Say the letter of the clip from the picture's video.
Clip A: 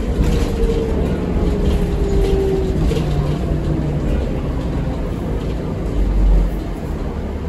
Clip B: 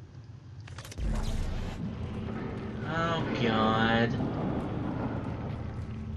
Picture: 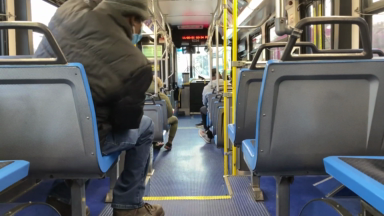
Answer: A